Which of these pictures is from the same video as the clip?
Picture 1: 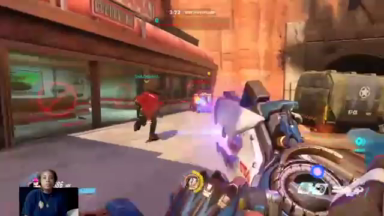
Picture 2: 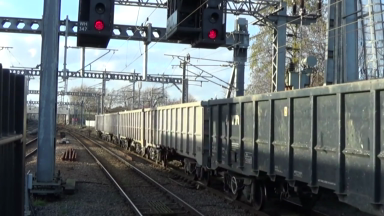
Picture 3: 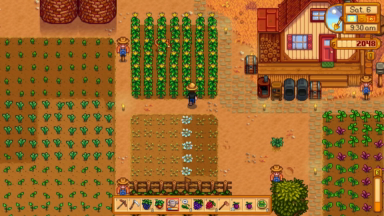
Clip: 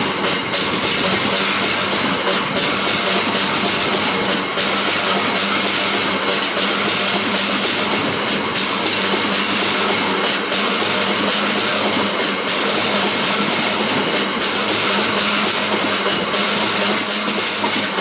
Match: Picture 2